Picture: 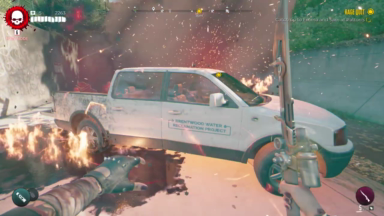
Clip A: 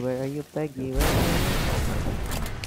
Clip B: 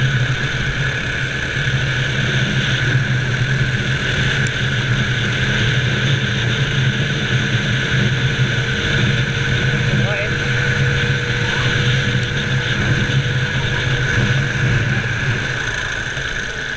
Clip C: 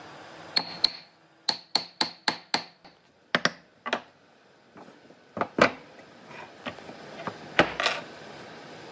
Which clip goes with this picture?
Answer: A